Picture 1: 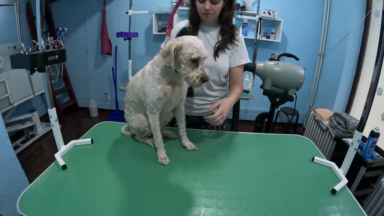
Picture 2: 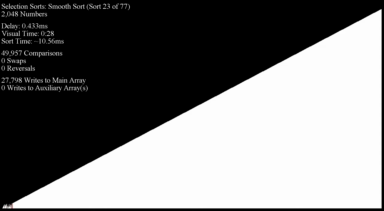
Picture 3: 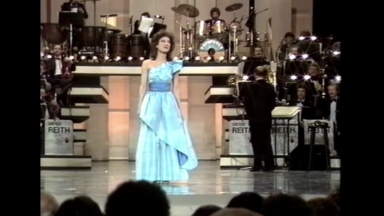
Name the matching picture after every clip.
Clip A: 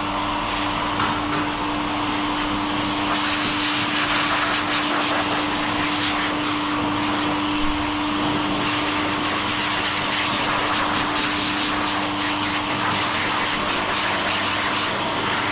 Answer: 1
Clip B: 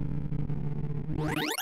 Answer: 2